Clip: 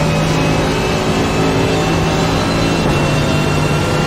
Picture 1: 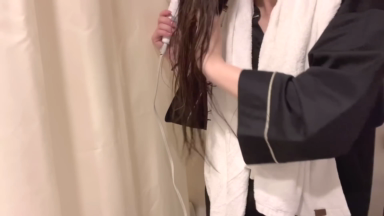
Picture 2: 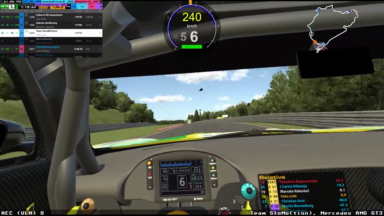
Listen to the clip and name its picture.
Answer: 2